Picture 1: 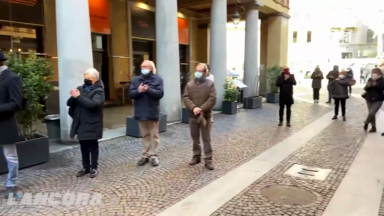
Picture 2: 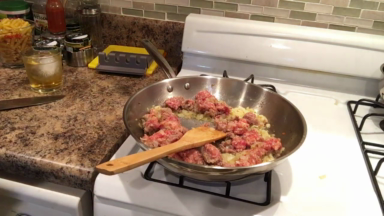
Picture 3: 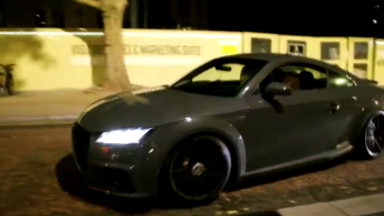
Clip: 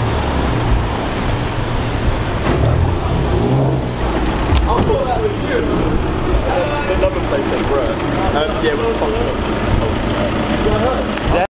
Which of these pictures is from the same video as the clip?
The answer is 3